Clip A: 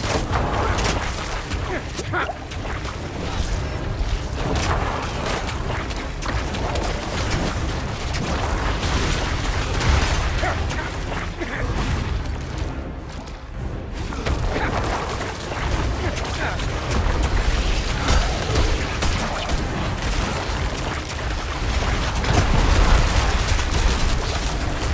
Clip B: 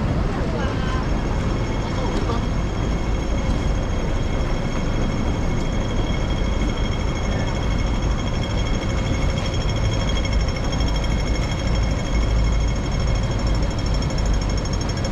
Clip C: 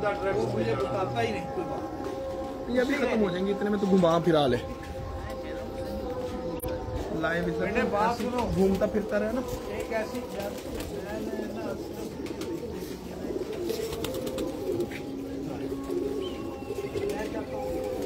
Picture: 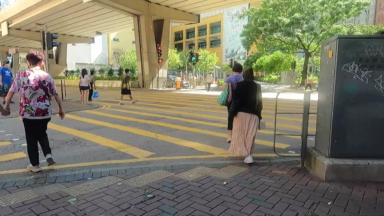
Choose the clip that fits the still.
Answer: B